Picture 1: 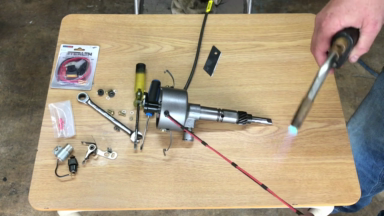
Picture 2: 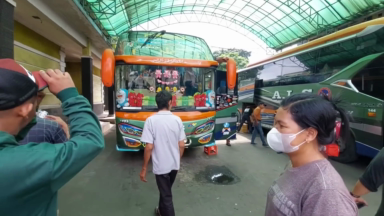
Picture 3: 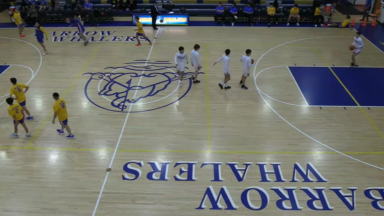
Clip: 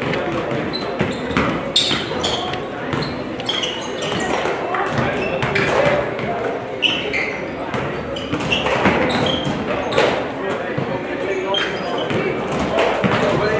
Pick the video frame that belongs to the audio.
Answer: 3